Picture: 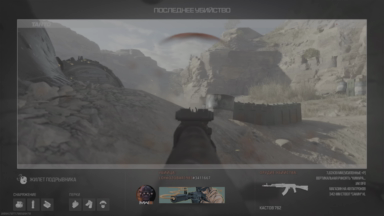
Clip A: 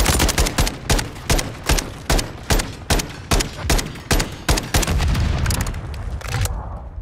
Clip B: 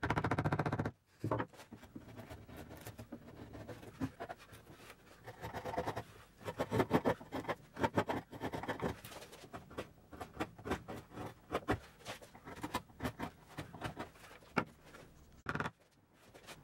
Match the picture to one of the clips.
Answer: A